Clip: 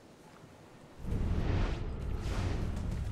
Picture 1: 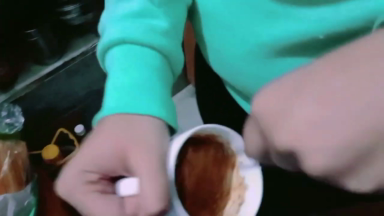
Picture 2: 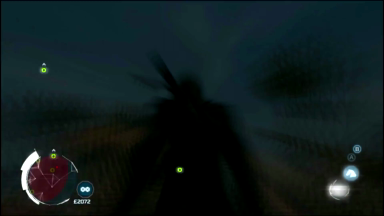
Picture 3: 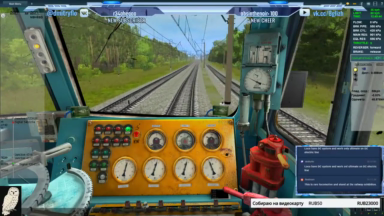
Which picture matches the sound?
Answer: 2